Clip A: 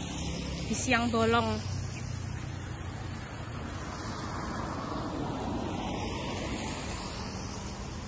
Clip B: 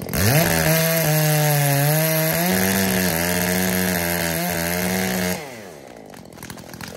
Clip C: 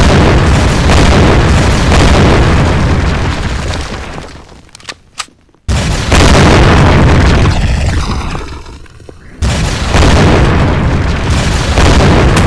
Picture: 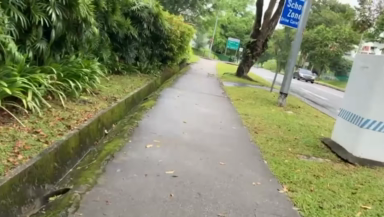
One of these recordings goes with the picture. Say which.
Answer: A